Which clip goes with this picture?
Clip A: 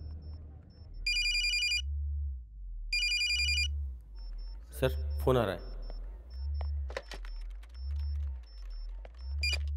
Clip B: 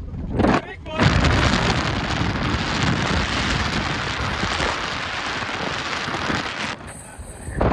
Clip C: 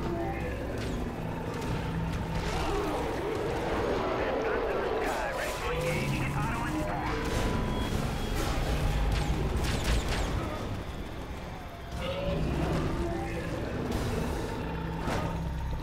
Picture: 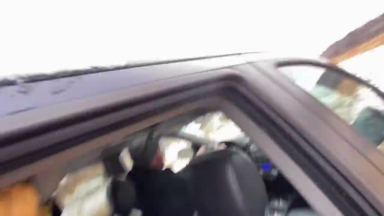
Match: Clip B